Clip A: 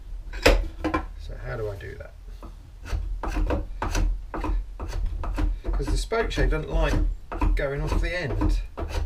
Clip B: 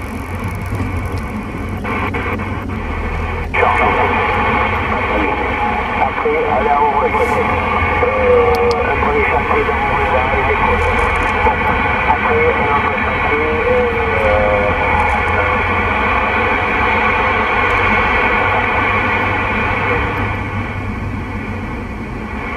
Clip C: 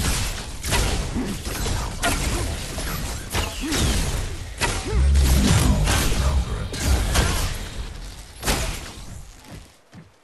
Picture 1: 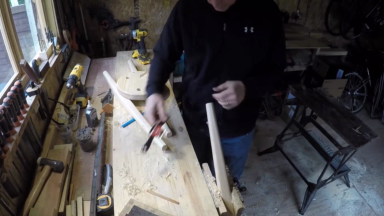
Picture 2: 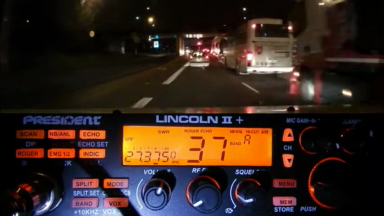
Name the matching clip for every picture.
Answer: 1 A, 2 B